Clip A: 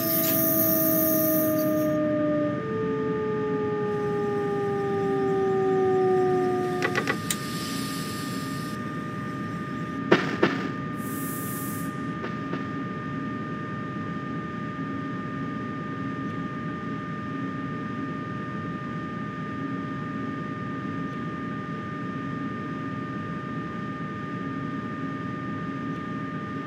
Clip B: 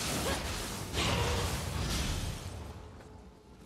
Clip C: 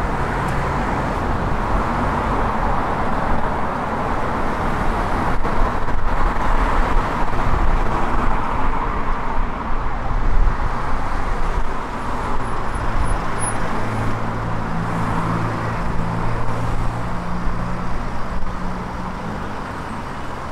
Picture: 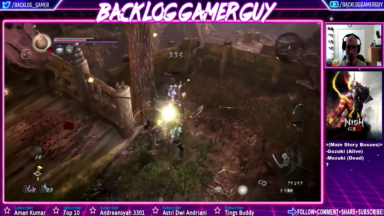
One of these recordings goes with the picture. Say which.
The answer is B